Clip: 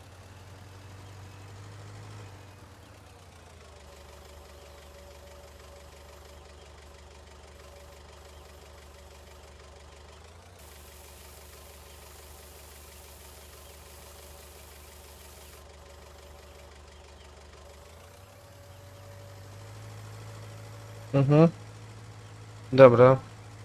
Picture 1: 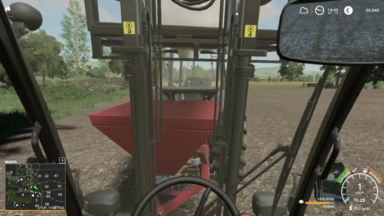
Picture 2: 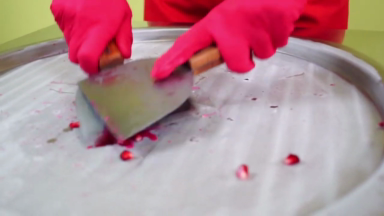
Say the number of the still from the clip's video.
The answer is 1